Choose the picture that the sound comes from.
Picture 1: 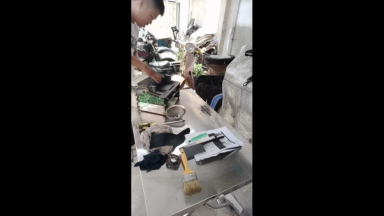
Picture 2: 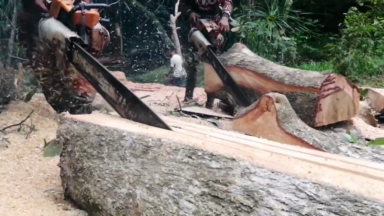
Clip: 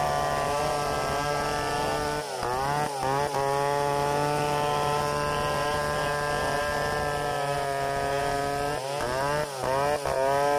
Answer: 2